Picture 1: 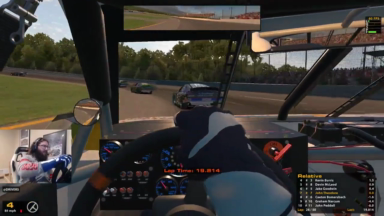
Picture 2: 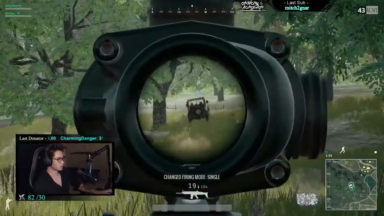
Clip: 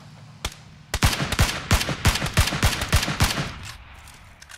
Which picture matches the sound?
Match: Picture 2